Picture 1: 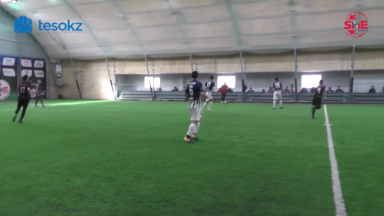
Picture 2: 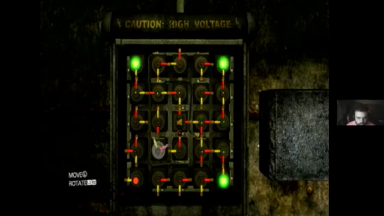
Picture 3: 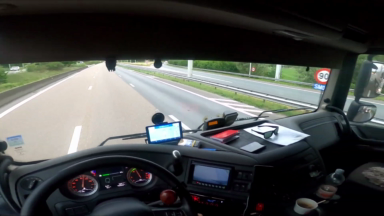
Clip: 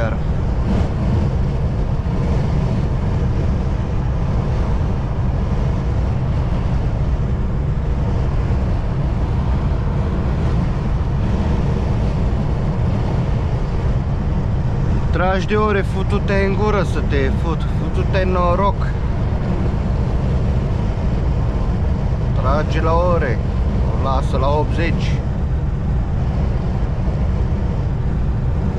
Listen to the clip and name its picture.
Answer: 3